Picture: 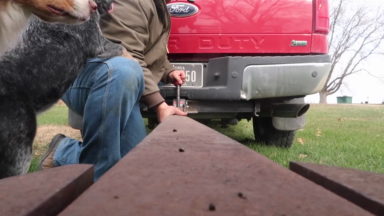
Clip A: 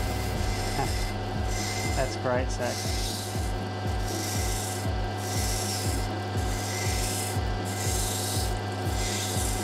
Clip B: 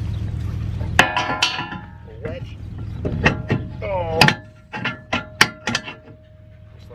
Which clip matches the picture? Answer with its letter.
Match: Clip B